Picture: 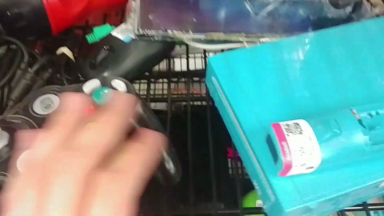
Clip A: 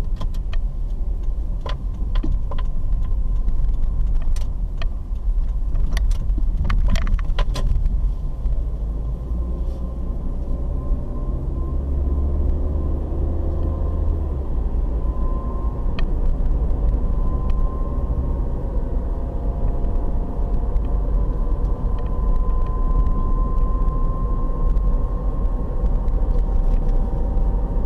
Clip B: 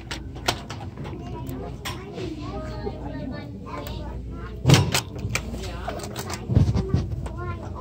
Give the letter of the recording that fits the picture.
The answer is B